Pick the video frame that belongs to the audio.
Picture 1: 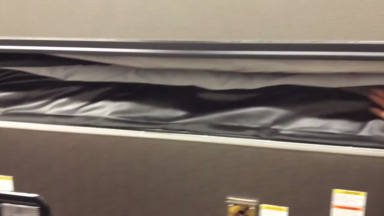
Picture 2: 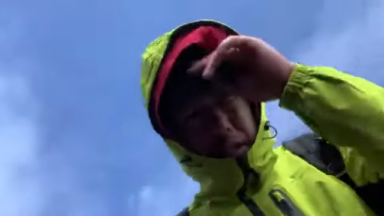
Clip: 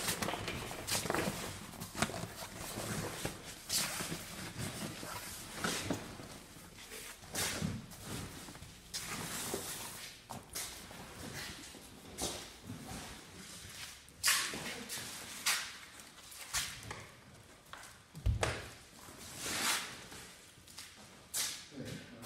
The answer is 1